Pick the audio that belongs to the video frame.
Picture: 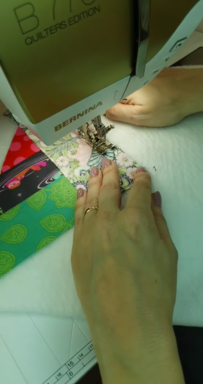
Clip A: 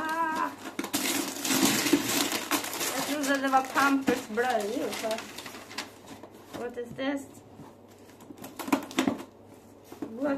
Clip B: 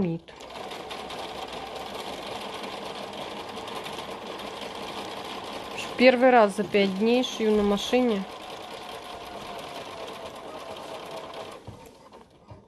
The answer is B